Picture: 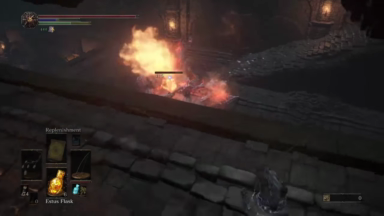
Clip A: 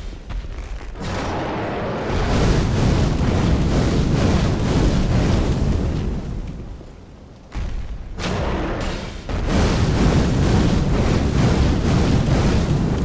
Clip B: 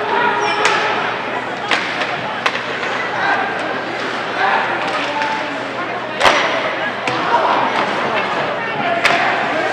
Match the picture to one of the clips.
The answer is A